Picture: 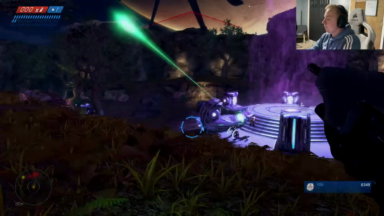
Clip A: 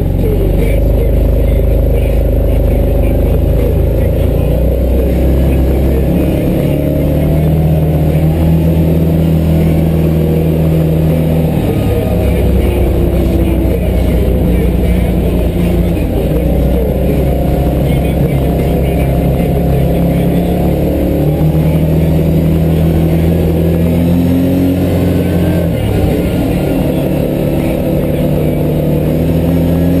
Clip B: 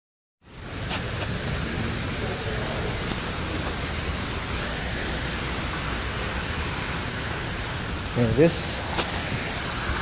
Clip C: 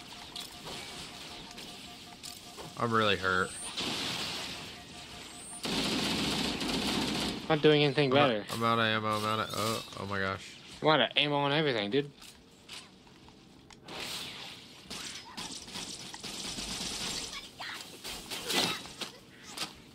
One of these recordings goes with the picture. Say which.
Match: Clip C